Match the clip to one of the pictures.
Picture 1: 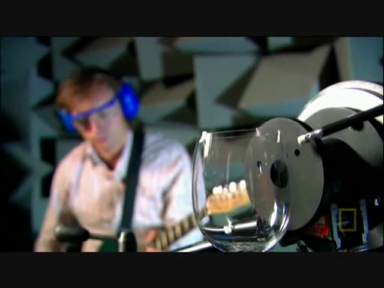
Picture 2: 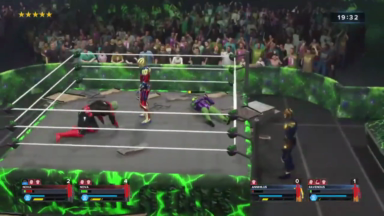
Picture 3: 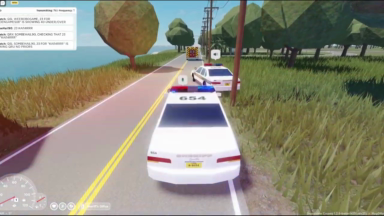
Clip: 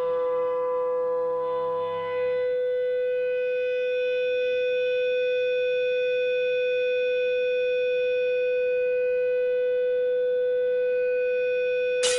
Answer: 1